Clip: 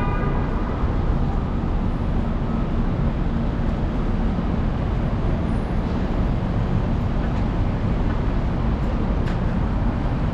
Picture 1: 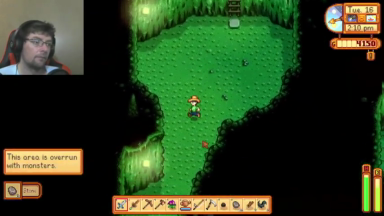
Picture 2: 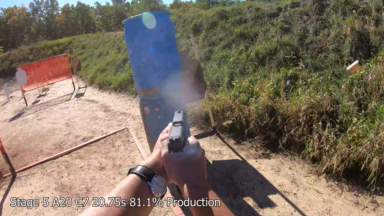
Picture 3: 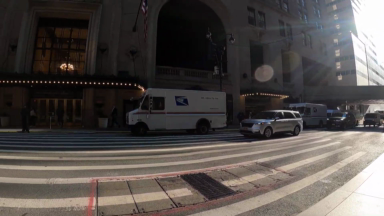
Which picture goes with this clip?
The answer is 3